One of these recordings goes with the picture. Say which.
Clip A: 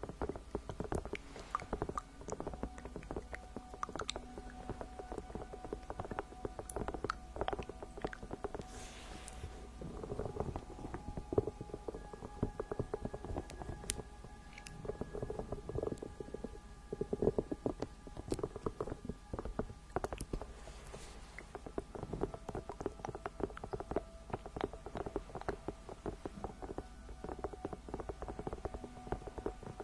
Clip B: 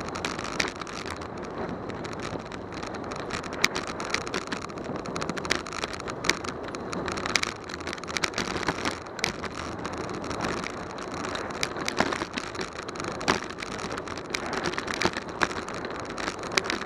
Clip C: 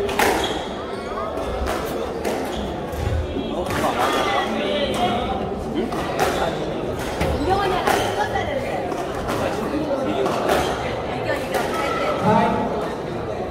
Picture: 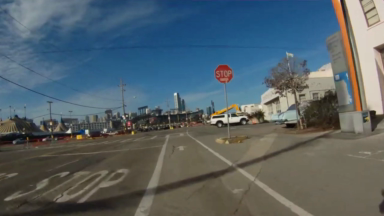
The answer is B